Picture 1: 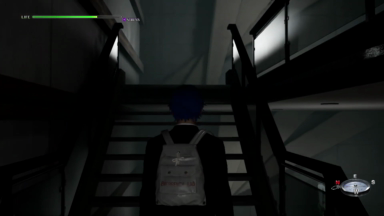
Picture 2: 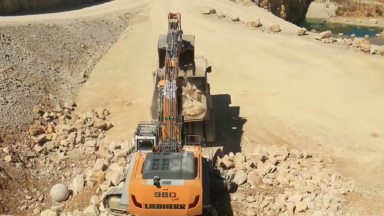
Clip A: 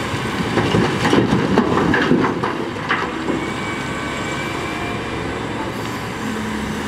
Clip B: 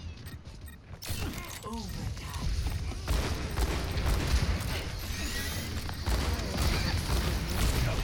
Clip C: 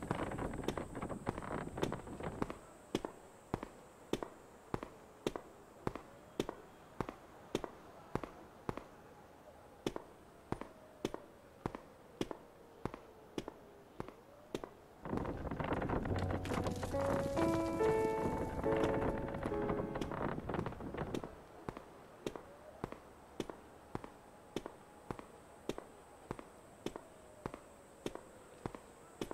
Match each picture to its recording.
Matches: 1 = C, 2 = A